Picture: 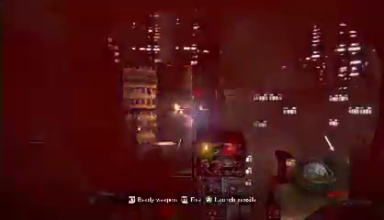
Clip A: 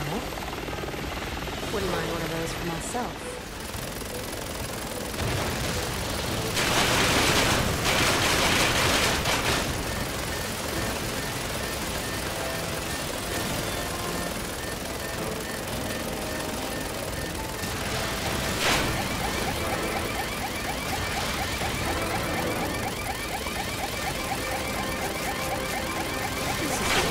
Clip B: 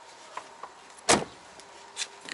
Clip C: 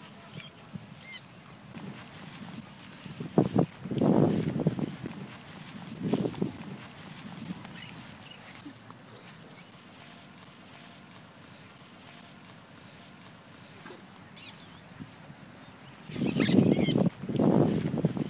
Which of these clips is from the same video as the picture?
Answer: A